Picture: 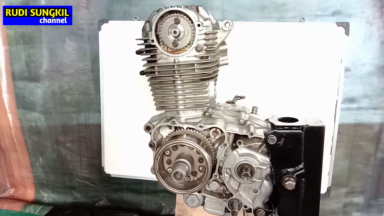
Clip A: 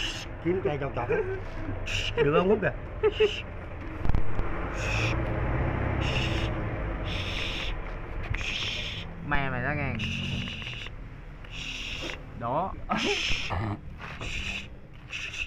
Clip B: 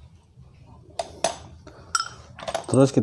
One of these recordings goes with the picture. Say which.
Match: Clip B